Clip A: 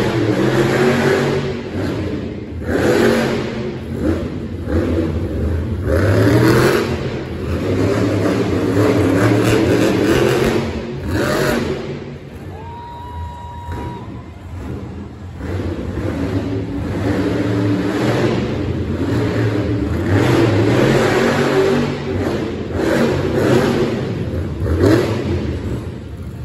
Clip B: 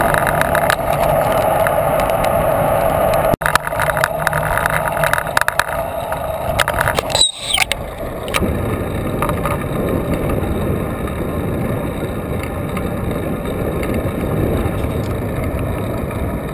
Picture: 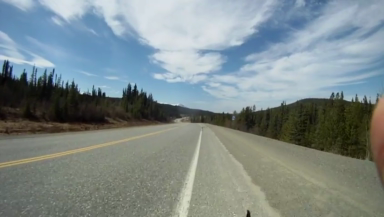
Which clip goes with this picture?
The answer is B